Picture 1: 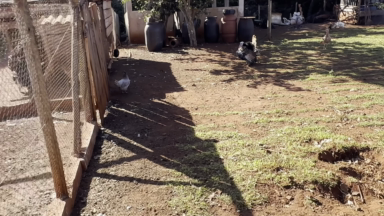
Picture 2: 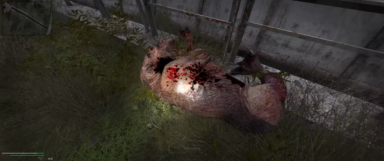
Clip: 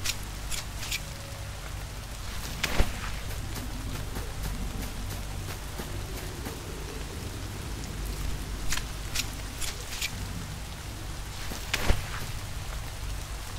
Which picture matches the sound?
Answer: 2